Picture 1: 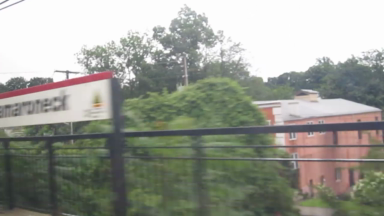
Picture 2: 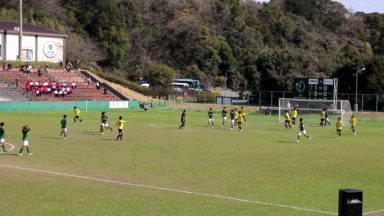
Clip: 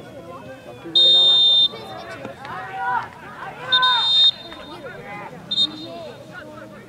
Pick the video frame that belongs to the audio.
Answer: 2